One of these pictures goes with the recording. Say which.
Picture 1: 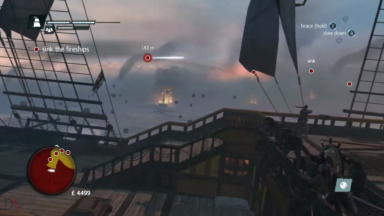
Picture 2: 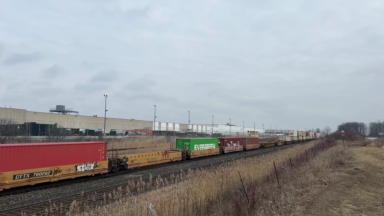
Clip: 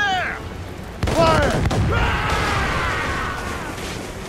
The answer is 1